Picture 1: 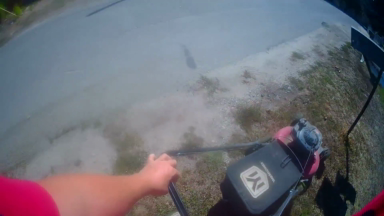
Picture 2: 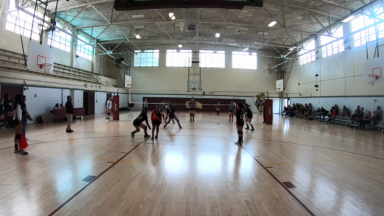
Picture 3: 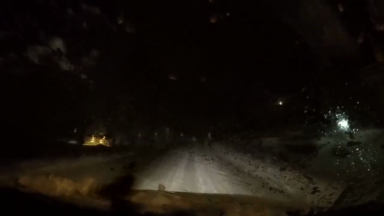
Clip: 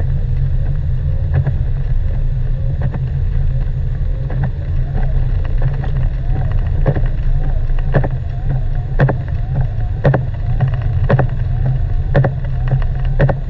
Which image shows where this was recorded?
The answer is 3